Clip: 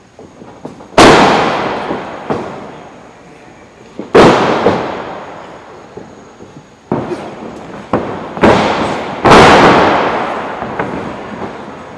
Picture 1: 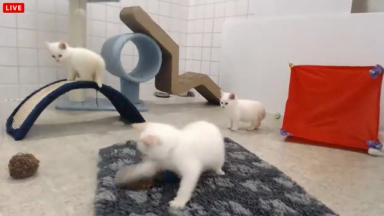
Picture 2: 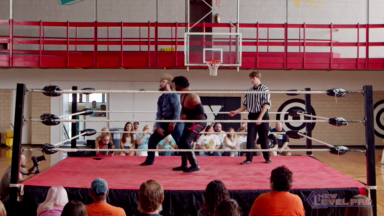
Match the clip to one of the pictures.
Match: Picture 2